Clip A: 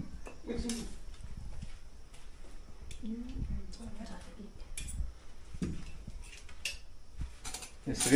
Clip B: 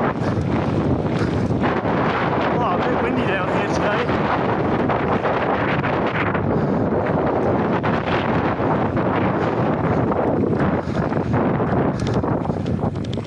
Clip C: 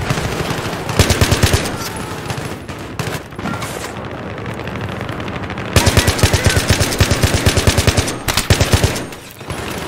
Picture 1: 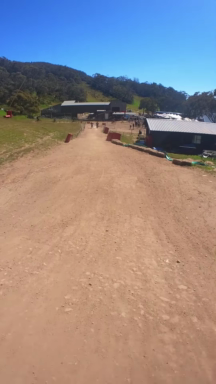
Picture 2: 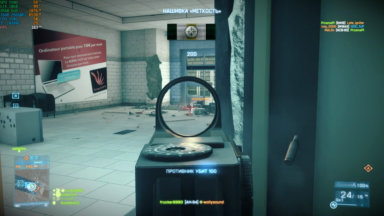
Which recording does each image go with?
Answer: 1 B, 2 C